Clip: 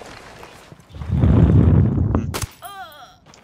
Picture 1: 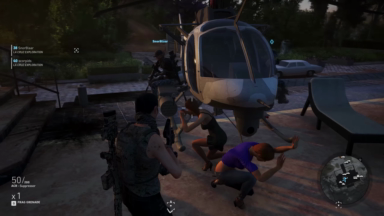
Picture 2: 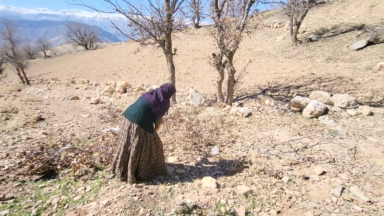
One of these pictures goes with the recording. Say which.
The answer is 1